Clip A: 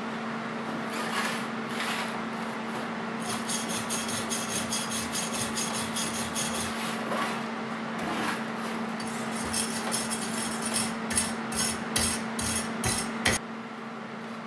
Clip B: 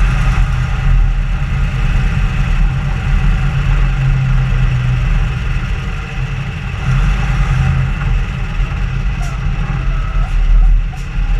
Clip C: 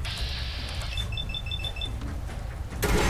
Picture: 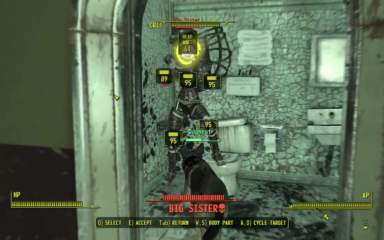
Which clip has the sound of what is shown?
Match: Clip C